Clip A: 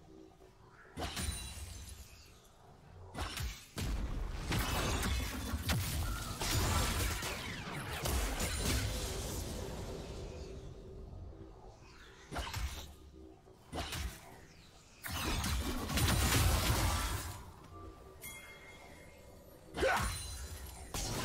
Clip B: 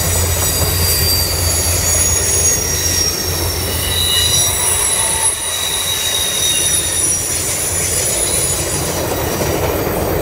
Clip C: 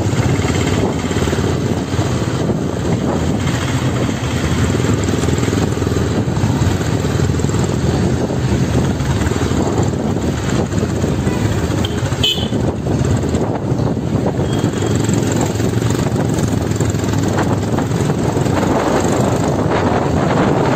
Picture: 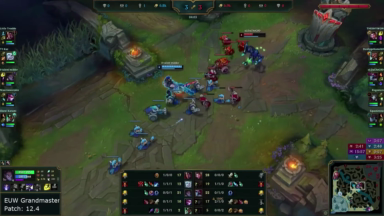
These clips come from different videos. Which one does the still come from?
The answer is A